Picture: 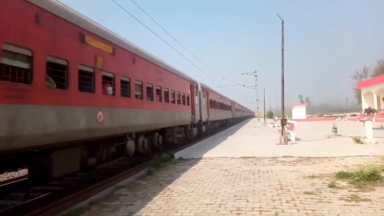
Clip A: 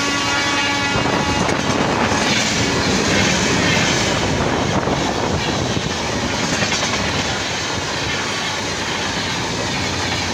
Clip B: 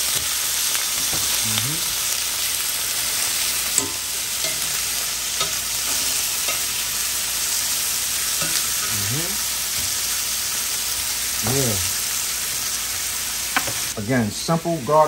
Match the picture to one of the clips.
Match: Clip A